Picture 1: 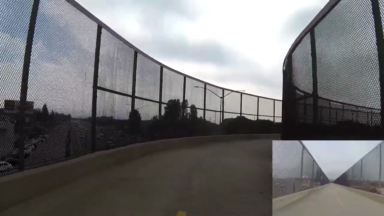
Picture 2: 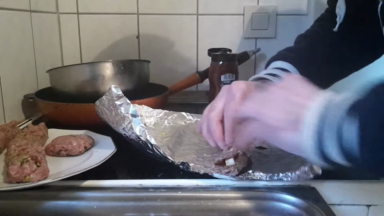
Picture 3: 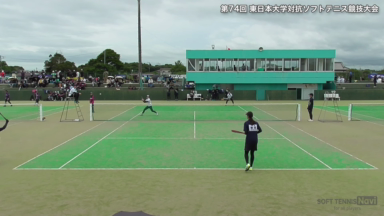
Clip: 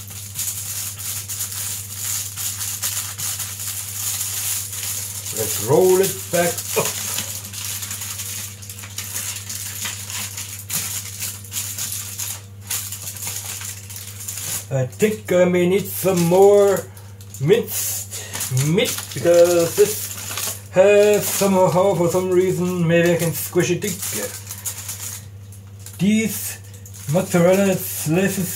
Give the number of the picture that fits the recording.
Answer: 2